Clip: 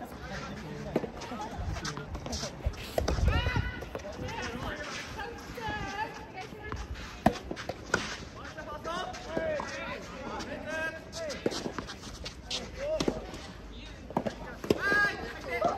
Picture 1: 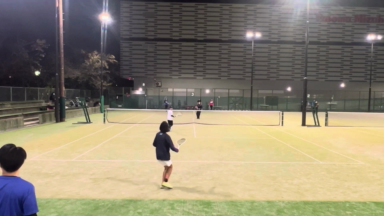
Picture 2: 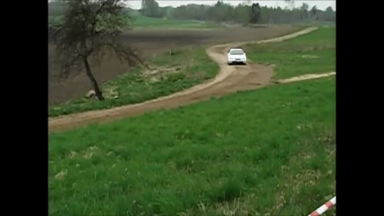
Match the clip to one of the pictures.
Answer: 1